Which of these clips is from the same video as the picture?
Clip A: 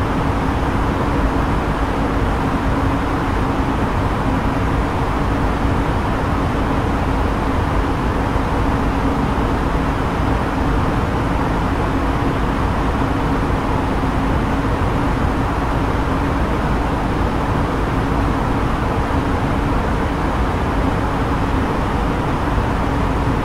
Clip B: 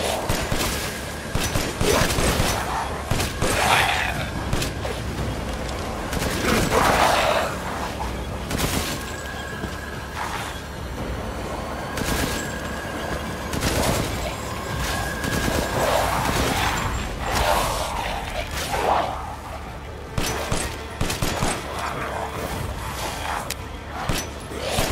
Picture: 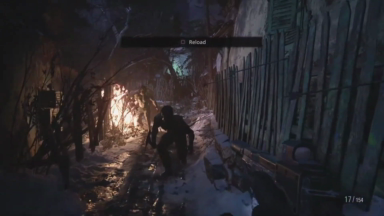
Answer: B